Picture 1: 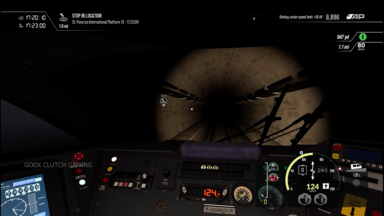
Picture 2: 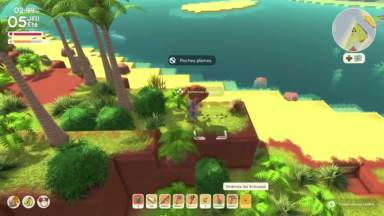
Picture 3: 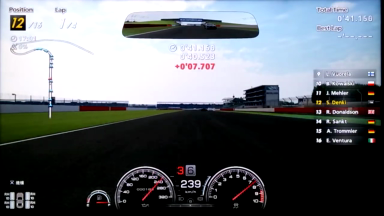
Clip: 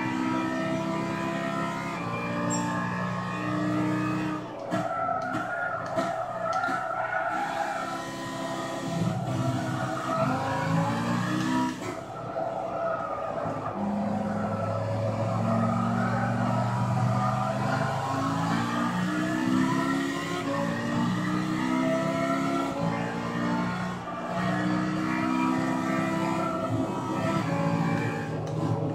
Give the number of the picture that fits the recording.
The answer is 3